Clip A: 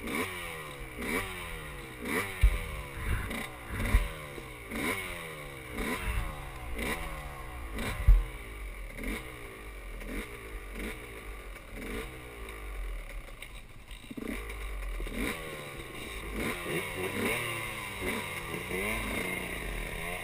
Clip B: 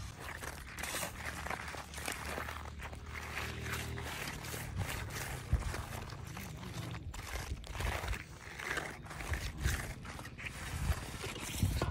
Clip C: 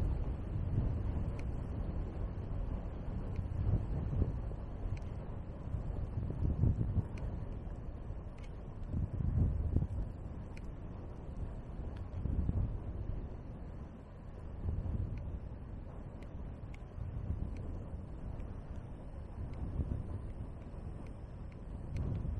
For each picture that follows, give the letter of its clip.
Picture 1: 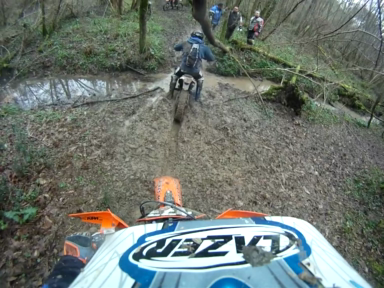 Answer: A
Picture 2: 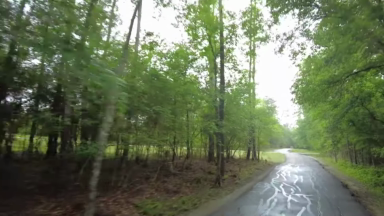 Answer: C